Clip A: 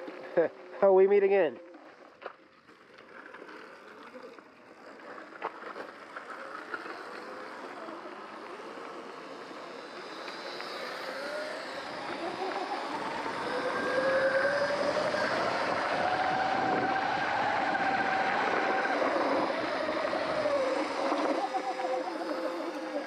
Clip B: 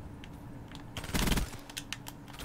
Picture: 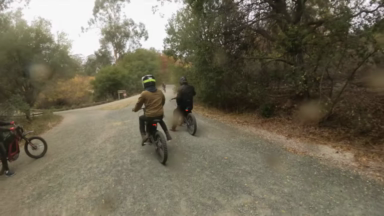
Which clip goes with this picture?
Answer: A